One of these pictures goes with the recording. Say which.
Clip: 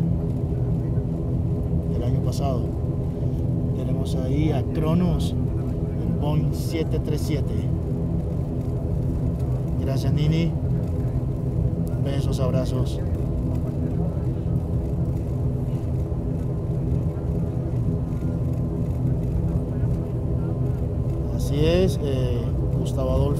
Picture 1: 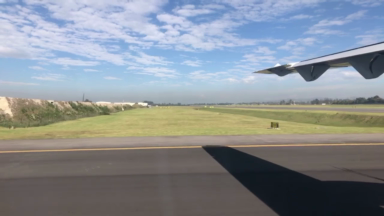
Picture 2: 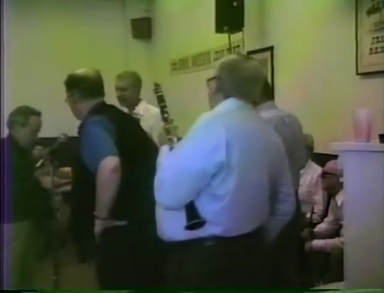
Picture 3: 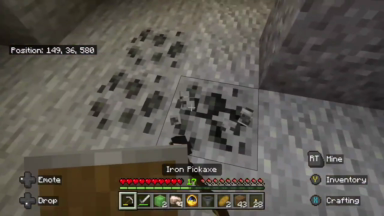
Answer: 1